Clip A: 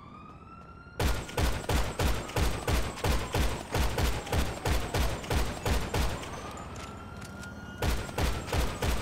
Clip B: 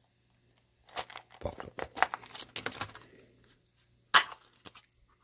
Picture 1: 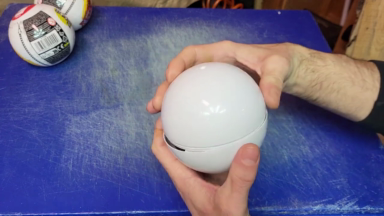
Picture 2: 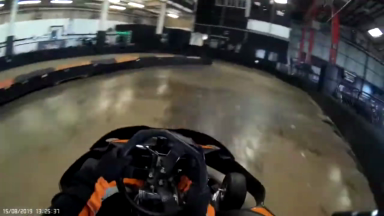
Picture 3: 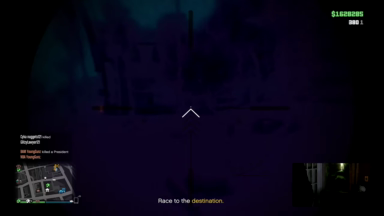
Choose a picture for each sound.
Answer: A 3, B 1